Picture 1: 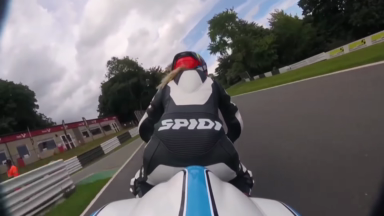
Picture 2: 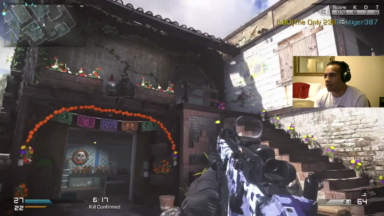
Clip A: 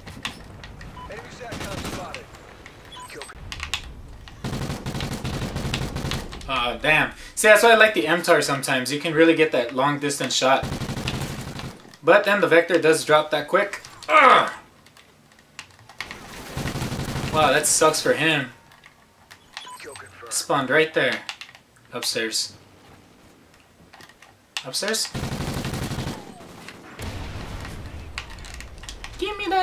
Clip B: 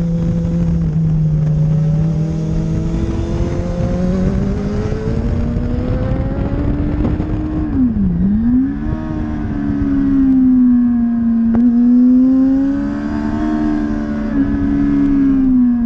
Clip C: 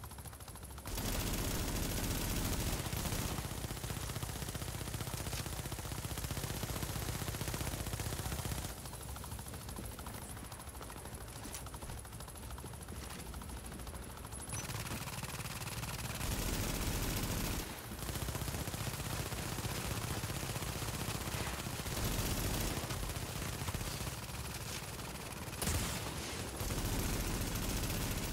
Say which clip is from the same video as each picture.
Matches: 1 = B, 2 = A